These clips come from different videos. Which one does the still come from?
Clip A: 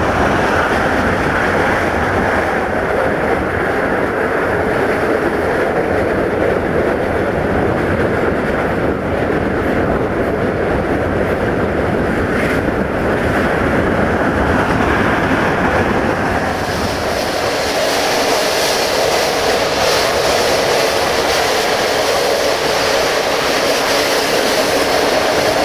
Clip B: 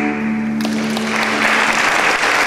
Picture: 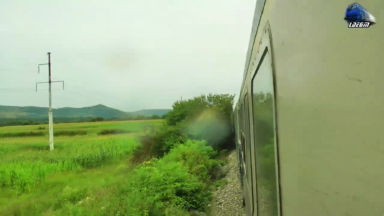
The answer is A